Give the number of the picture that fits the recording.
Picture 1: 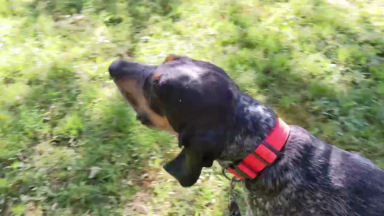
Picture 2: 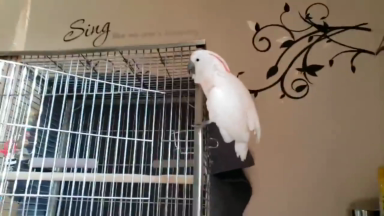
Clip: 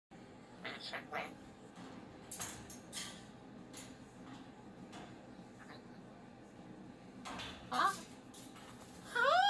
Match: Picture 2